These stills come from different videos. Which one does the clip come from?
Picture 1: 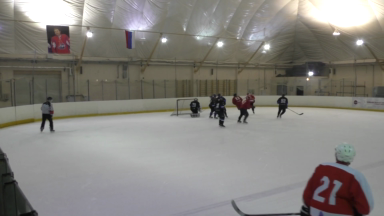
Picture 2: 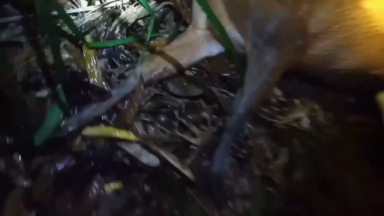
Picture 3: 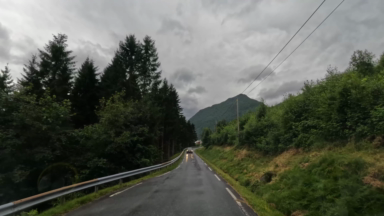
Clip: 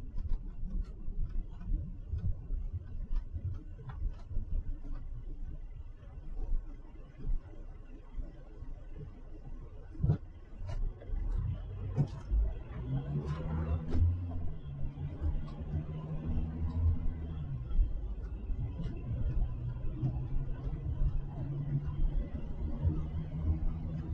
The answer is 3